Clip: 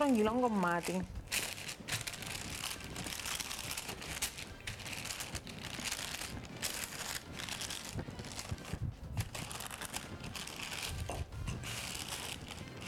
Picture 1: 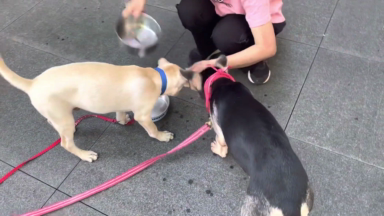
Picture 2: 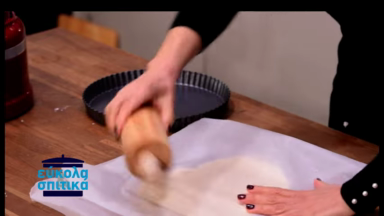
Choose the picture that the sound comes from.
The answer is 2